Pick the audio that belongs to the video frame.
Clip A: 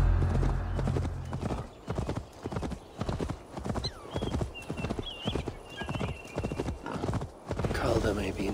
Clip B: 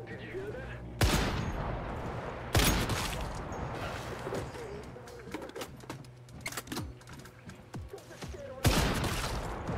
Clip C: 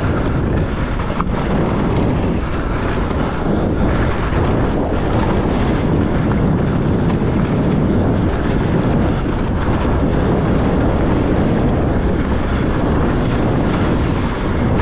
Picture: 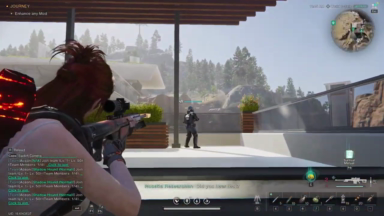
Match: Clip B